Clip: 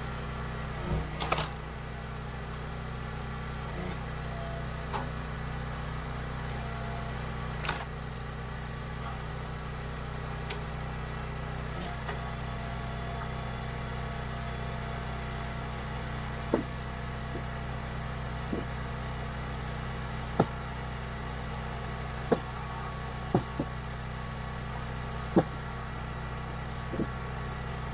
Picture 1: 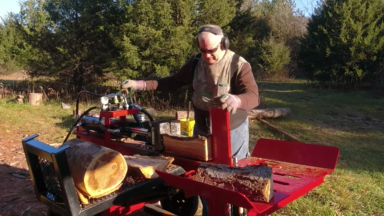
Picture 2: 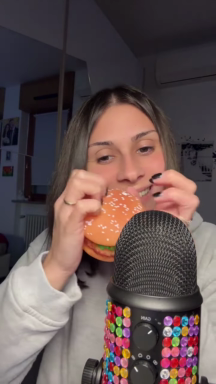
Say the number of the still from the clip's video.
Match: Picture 1